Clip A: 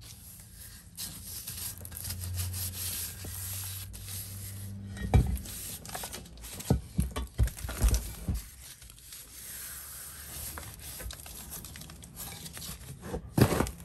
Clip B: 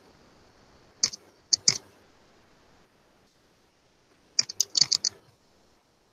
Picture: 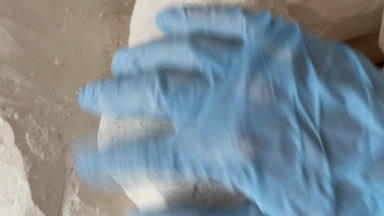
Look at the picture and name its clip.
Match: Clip A